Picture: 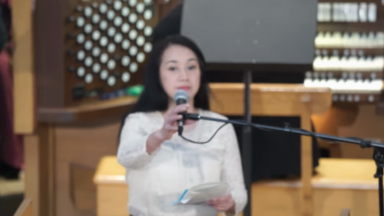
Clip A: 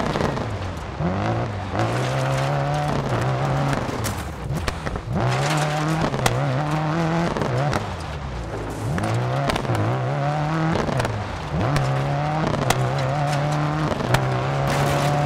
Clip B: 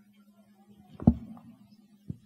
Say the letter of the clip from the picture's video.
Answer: B